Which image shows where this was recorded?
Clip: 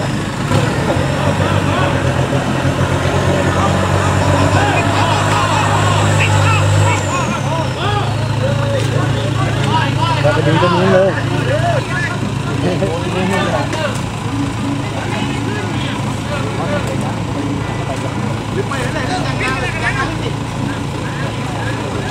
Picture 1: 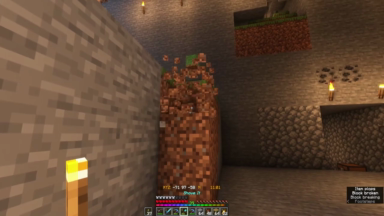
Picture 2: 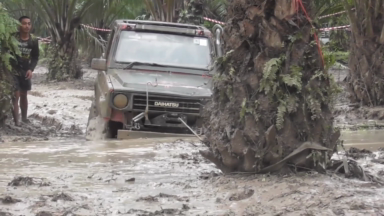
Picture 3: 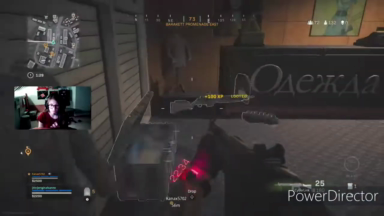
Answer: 2